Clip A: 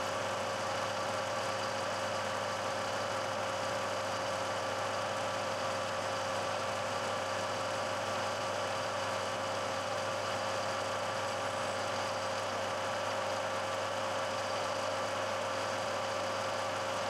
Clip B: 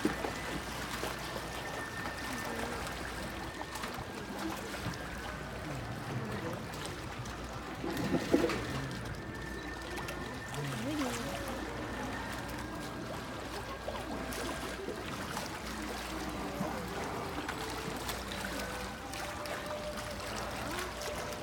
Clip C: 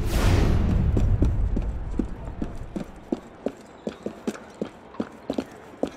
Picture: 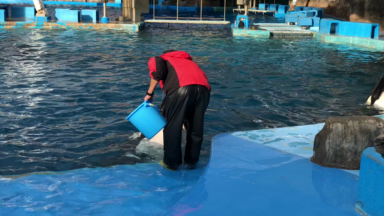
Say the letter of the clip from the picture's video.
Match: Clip B